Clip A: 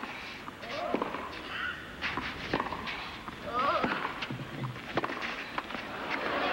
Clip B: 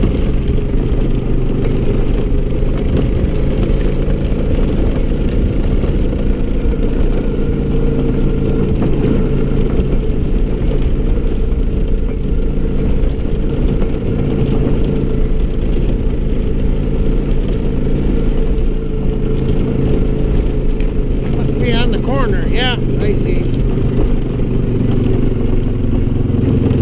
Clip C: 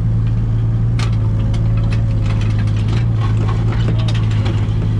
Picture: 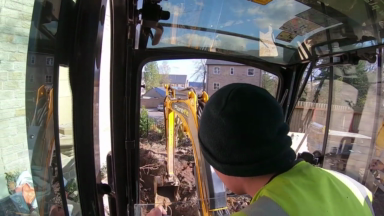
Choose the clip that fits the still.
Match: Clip C